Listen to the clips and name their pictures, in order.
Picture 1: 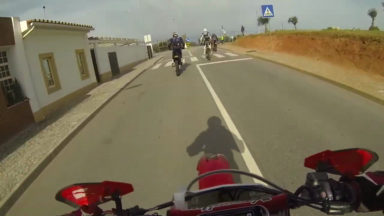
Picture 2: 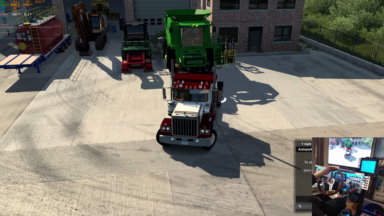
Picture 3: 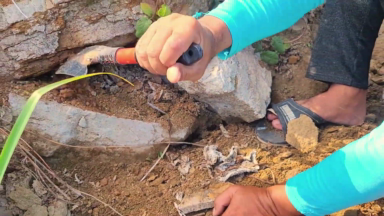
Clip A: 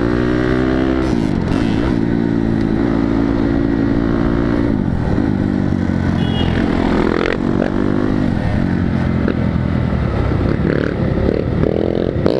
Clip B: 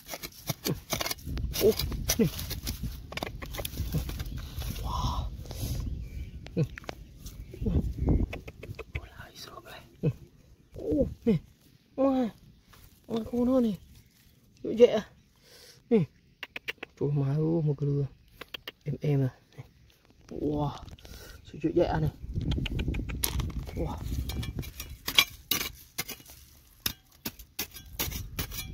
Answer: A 1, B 3